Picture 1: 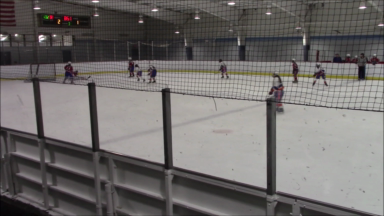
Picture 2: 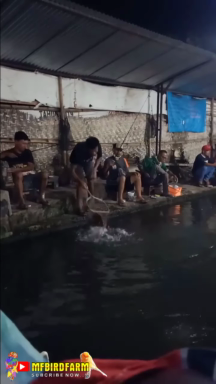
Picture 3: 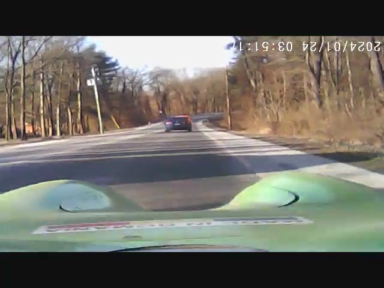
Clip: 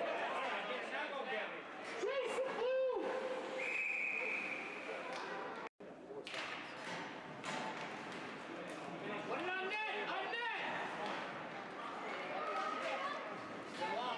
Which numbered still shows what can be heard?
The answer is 1